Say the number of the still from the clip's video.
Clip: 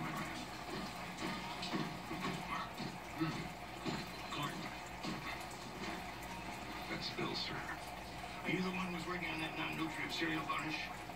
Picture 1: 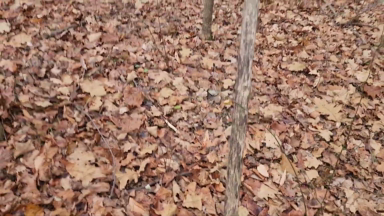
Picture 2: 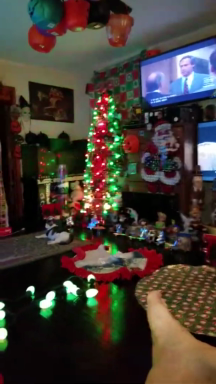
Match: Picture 2